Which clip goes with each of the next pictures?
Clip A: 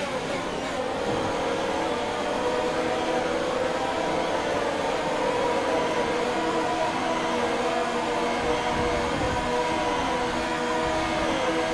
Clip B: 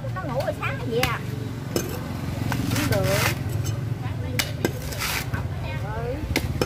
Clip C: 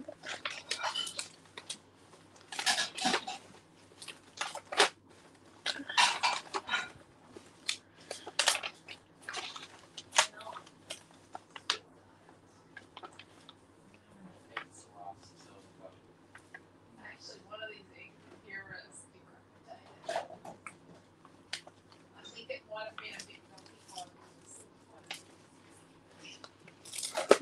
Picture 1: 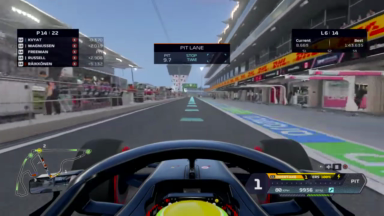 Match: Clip A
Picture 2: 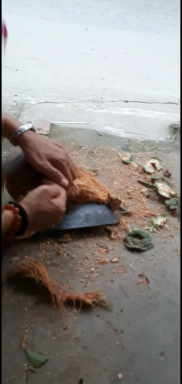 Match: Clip B